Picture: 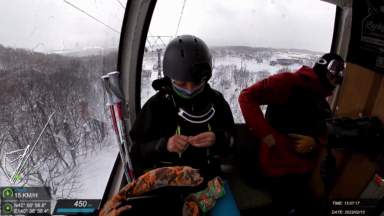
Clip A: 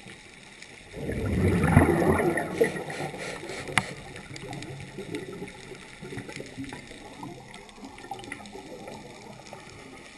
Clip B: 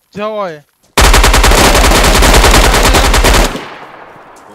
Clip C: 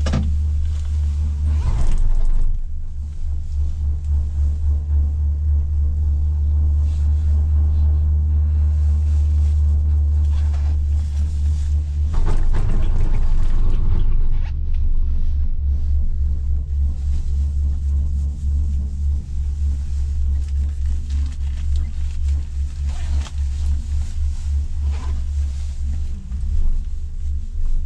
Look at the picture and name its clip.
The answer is C